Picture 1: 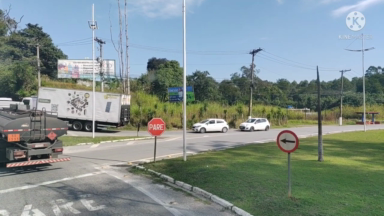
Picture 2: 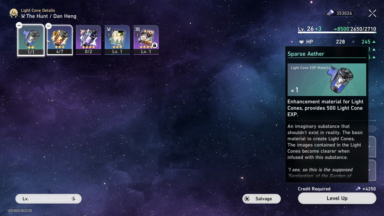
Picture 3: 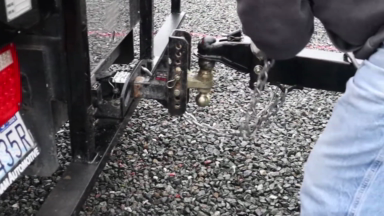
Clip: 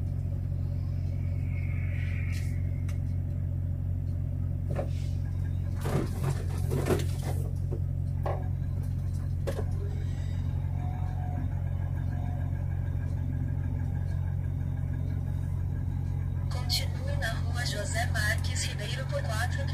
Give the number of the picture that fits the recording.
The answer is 1